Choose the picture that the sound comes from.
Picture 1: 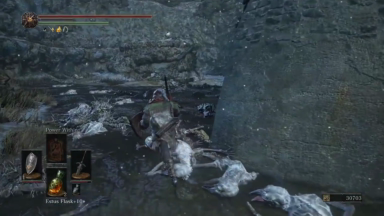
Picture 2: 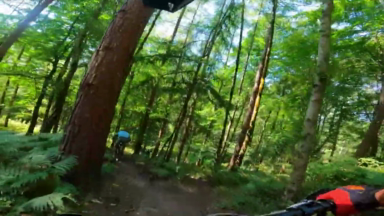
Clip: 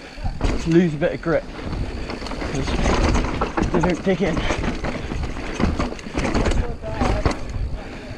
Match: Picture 2